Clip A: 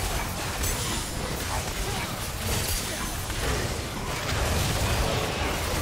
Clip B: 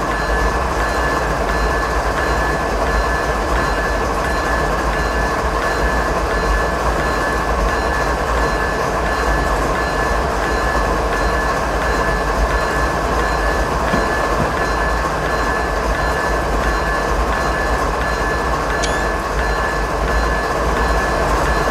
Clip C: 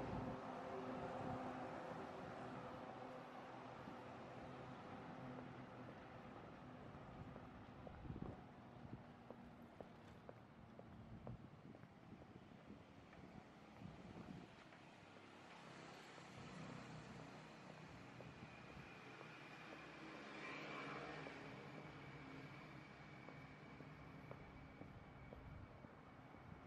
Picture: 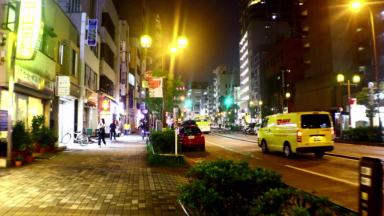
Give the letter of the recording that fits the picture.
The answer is C